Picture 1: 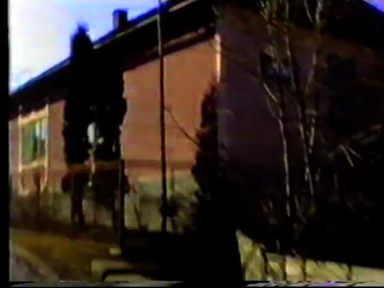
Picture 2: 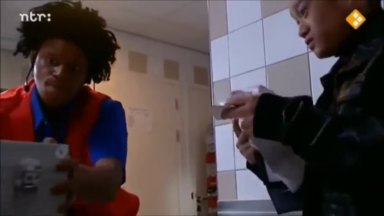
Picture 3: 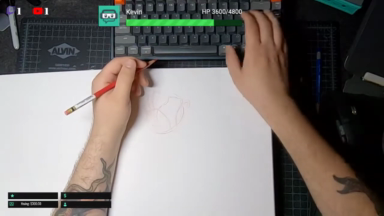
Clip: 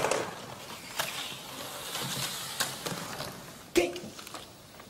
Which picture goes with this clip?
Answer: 2